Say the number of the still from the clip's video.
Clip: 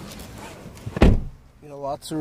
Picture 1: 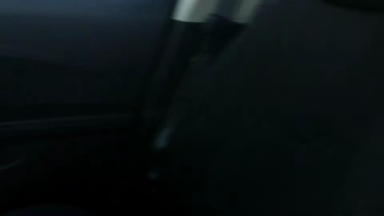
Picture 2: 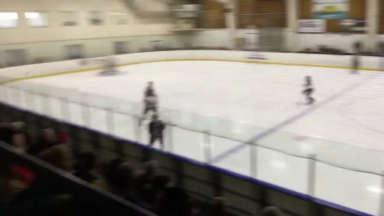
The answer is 1